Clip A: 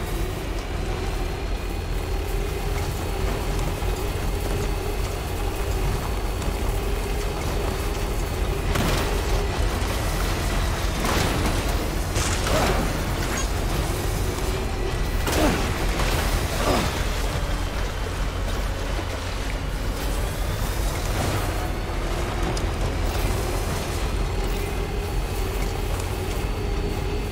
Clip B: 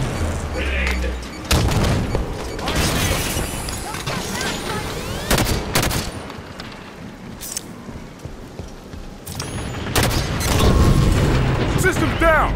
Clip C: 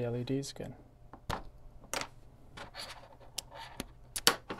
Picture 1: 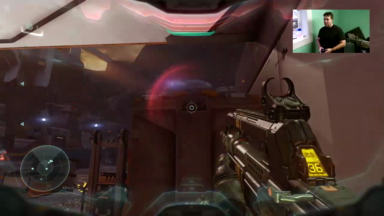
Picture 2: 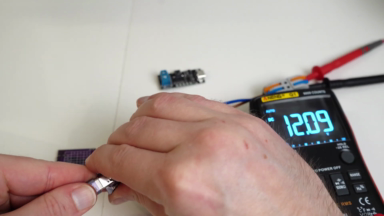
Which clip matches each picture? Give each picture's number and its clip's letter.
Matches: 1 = B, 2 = C